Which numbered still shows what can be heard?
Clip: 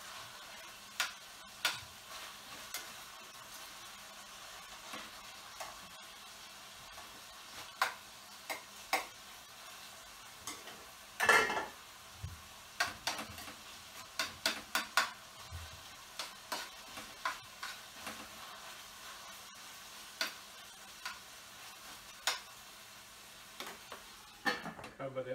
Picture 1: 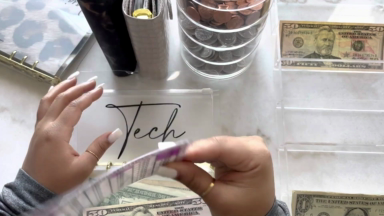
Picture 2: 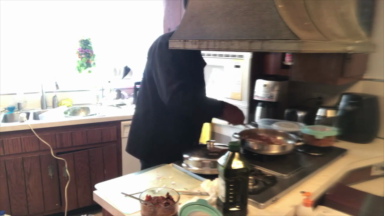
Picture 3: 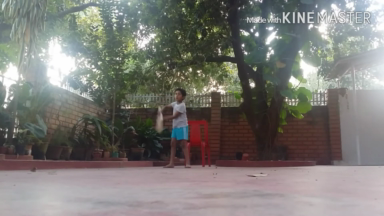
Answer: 2